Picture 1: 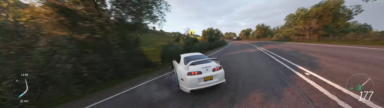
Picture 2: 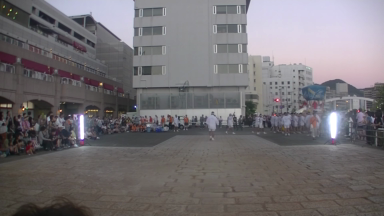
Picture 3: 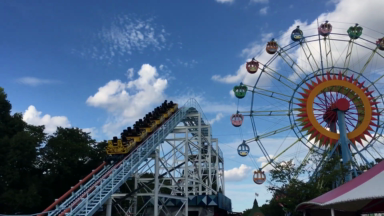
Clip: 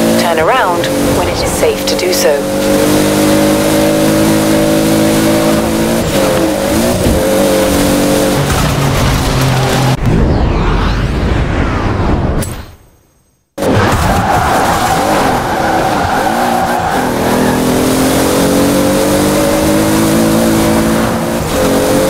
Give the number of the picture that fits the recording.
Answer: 1